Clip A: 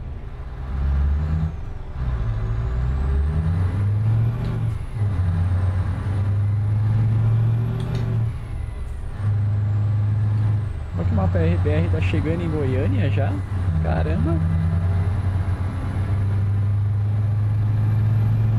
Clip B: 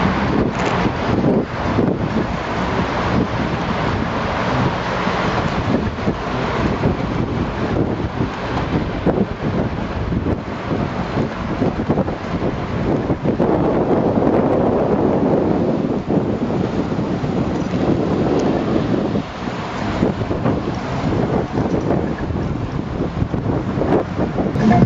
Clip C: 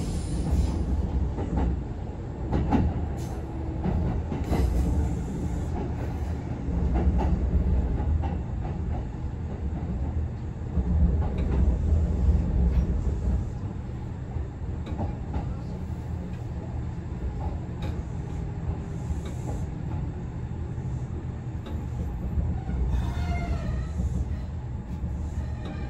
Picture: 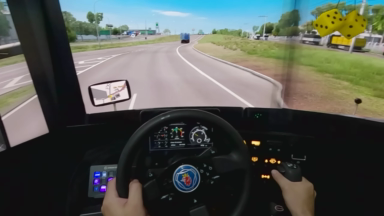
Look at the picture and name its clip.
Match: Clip A